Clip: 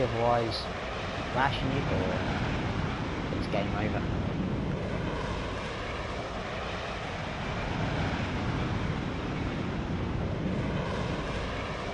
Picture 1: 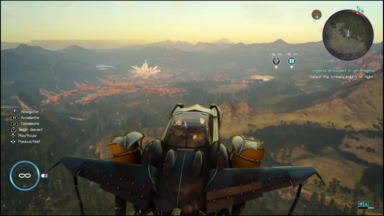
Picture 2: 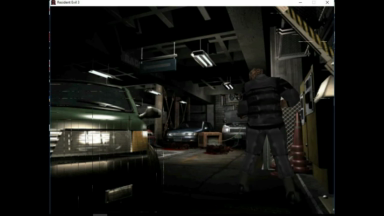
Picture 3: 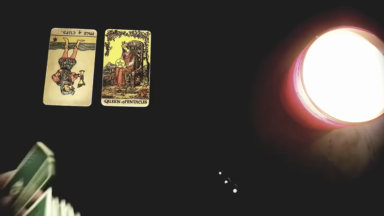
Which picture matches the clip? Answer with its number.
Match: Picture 1